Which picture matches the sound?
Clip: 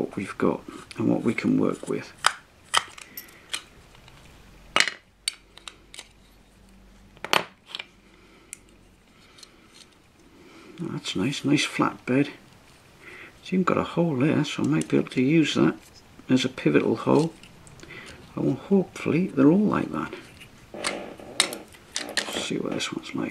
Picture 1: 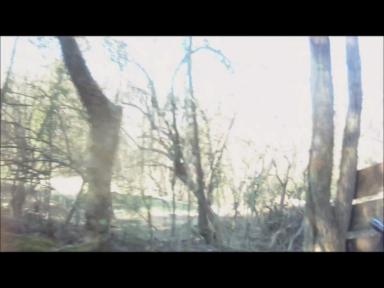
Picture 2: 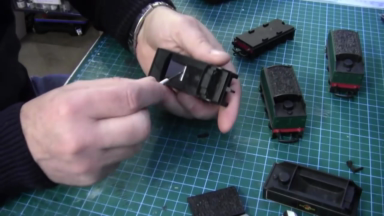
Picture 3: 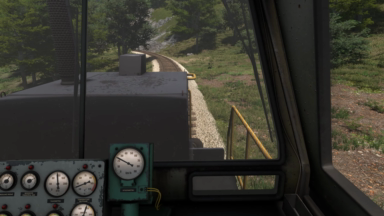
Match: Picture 2